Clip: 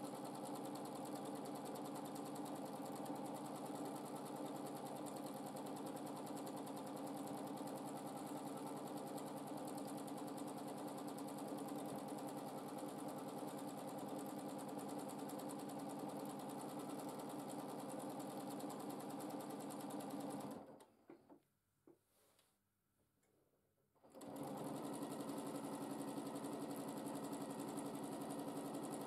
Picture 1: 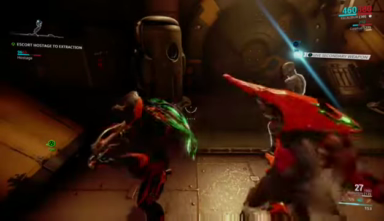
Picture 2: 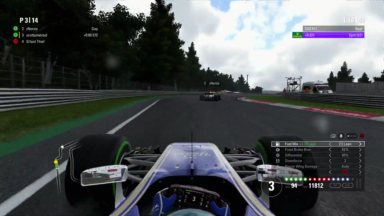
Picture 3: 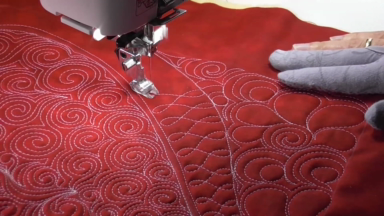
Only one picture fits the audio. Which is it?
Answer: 3